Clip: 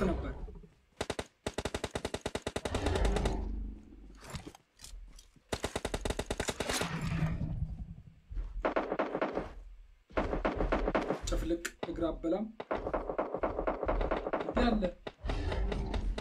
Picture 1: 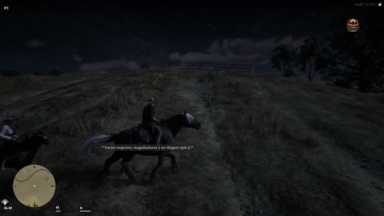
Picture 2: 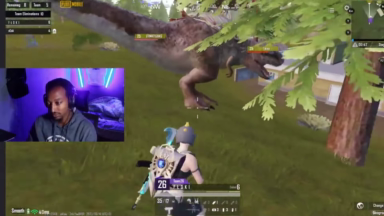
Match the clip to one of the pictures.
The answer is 2